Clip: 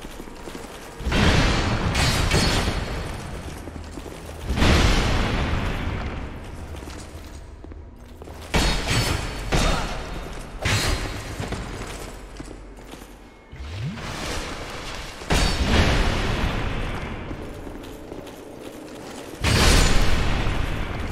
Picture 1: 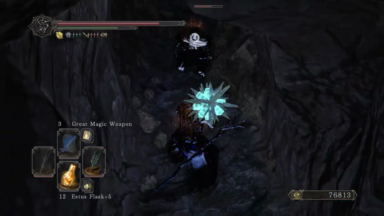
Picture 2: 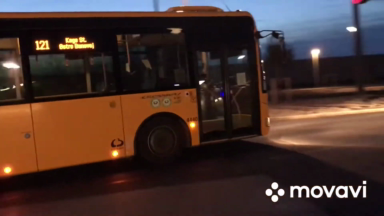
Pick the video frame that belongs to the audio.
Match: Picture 1